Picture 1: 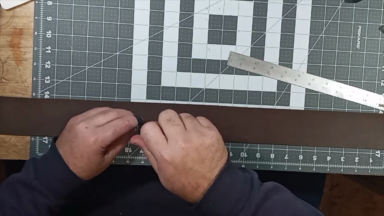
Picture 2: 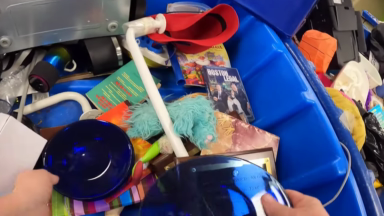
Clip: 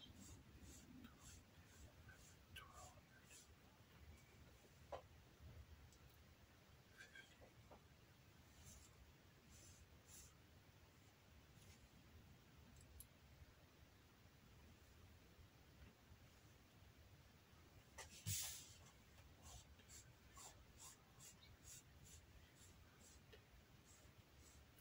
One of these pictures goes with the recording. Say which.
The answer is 1